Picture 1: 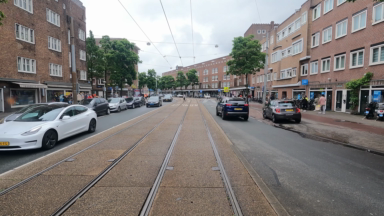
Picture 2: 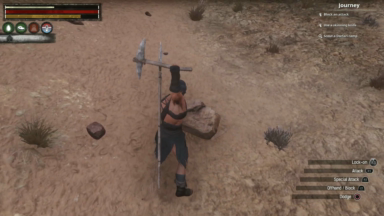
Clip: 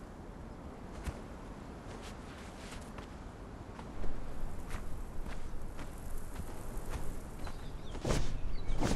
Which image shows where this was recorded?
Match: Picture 2